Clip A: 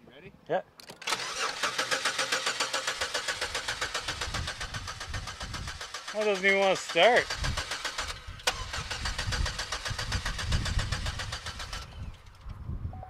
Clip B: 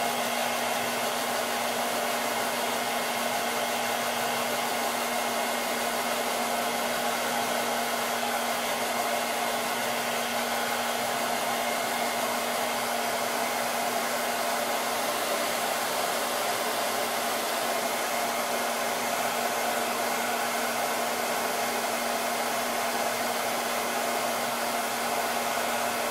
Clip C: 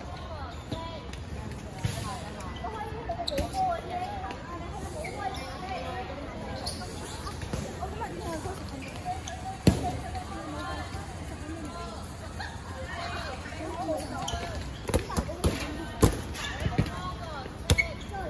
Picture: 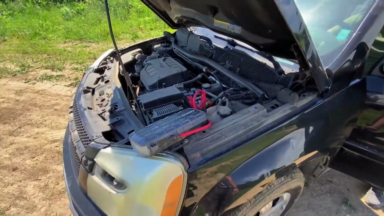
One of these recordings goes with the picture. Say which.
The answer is A